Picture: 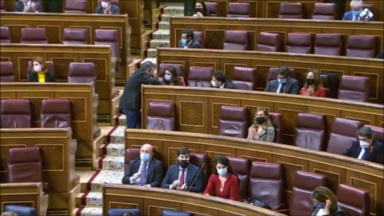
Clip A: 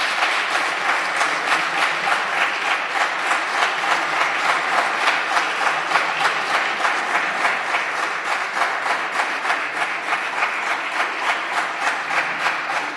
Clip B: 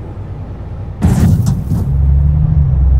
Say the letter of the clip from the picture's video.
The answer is A